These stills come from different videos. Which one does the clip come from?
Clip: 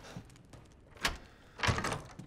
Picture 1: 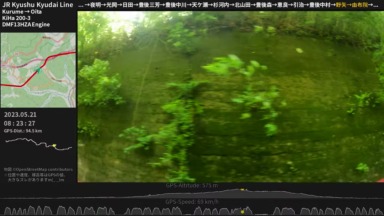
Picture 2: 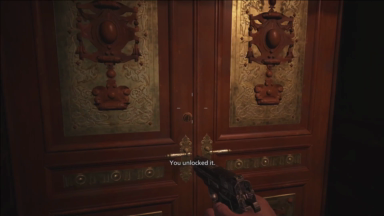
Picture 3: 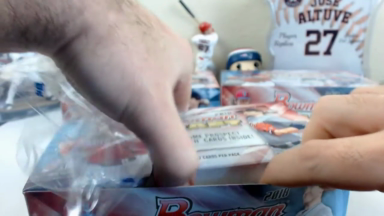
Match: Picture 2